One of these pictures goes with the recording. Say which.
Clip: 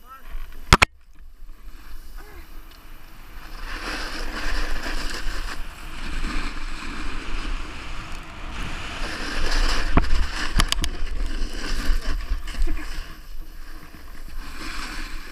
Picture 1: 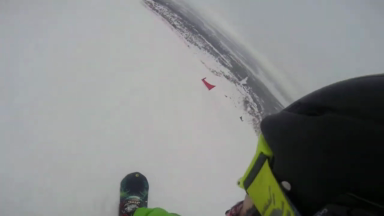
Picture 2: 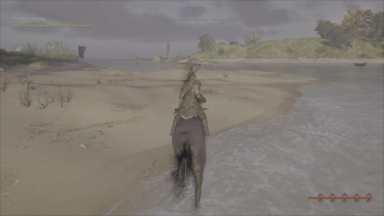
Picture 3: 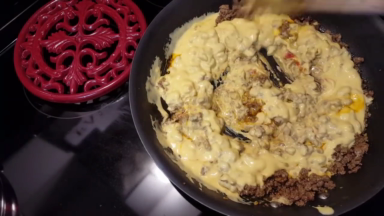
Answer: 1